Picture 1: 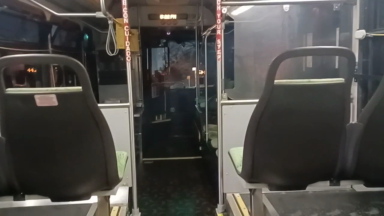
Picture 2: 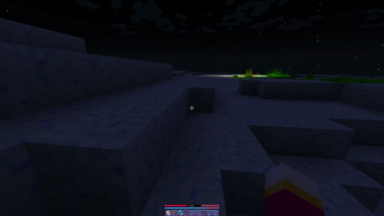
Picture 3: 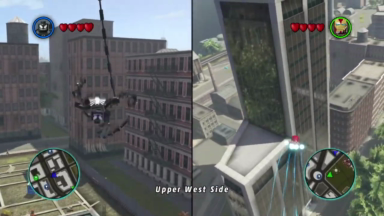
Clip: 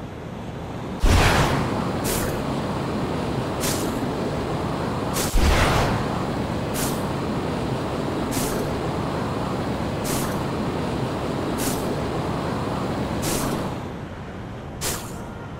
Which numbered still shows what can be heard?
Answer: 3